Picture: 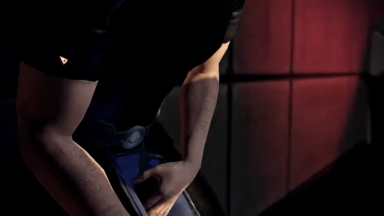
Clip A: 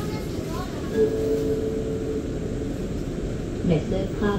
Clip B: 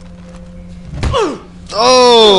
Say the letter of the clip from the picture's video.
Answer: B